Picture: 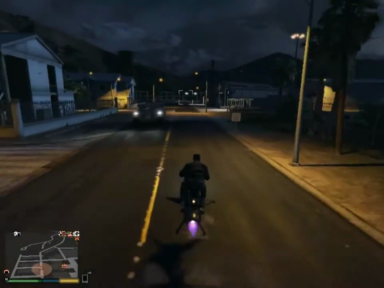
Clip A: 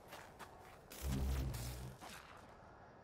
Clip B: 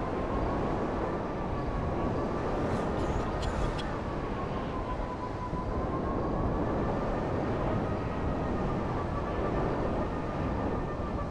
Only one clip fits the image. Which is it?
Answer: B